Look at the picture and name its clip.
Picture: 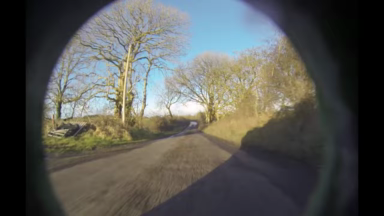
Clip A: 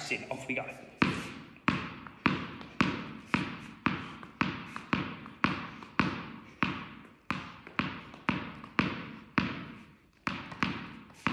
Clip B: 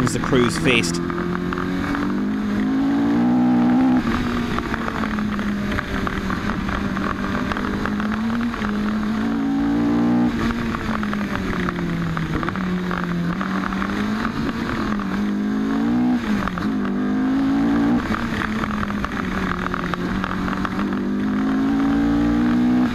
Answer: B